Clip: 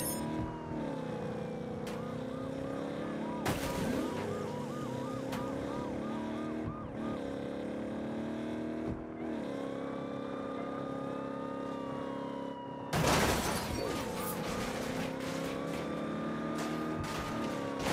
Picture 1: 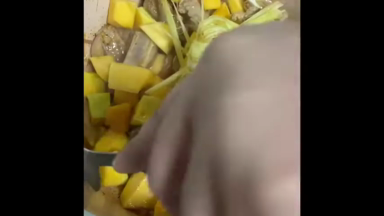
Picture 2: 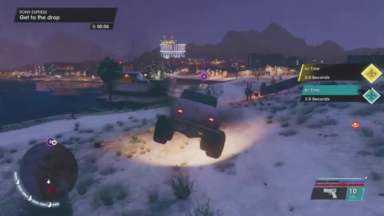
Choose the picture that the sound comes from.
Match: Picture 2